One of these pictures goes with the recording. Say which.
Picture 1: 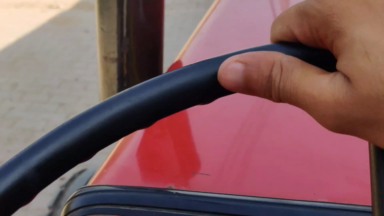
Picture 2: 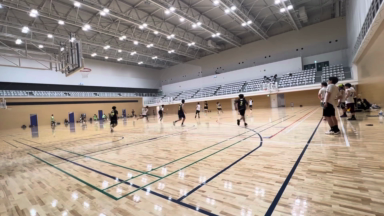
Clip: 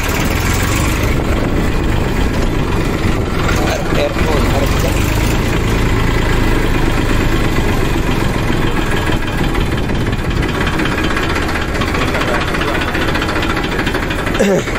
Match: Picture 1